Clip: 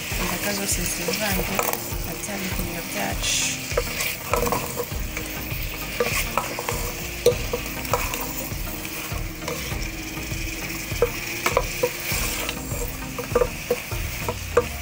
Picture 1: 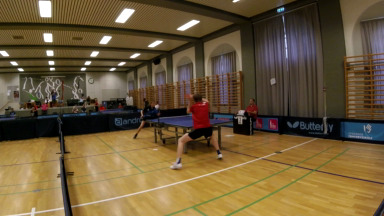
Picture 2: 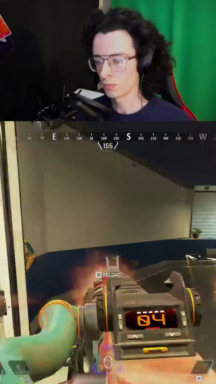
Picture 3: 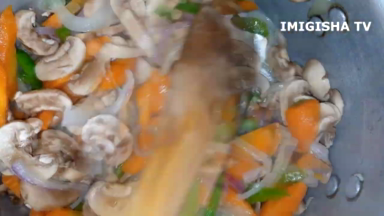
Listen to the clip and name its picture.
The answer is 3